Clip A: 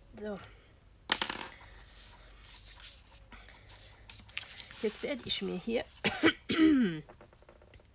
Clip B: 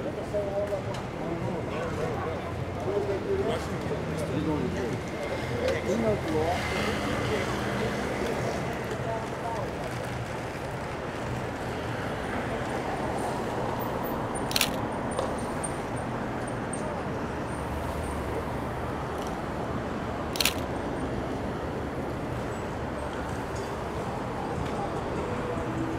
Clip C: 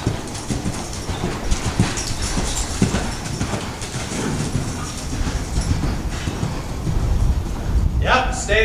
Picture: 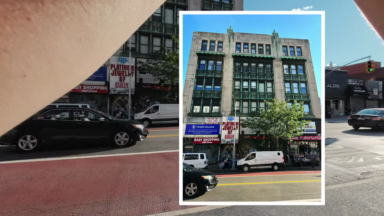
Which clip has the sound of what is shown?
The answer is B